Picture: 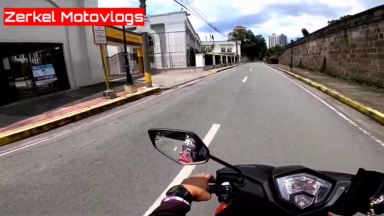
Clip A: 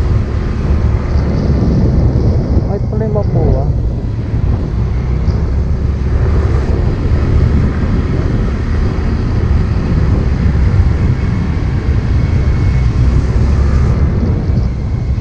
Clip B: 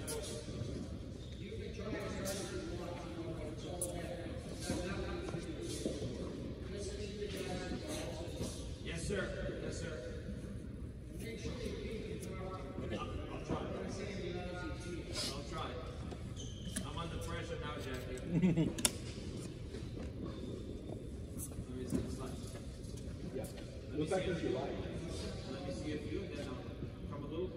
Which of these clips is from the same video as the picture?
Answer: A